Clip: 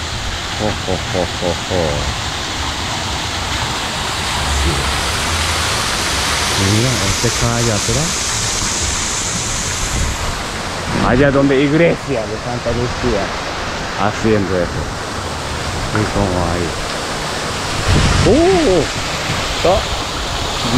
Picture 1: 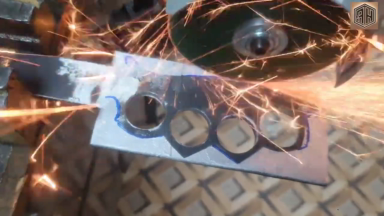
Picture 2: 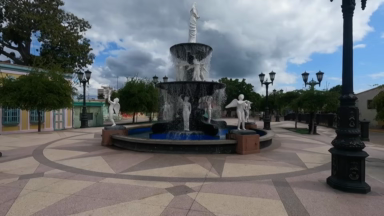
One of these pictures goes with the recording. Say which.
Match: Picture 2